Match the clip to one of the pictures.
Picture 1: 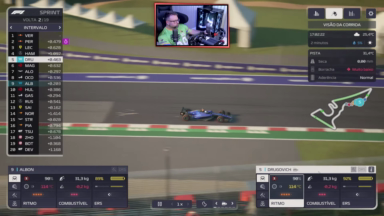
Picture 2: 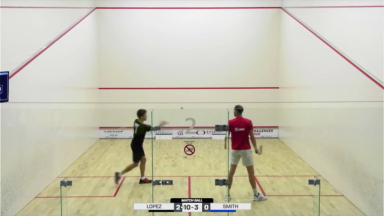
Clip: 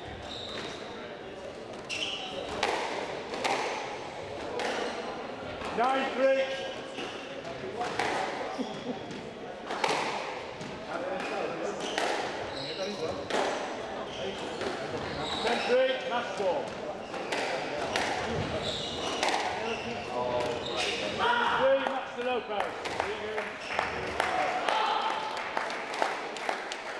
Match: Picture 2